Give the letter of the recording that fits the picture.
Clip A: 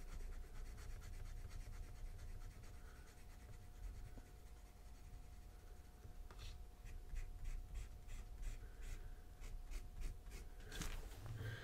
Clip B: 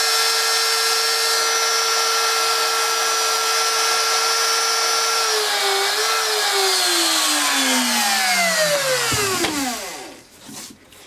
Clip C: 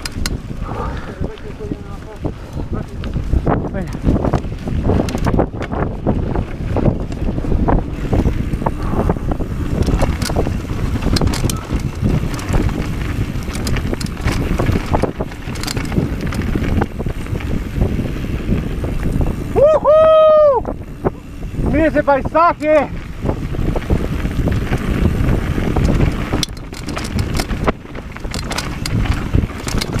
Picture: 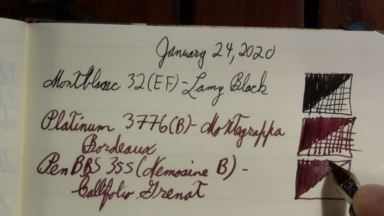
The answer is A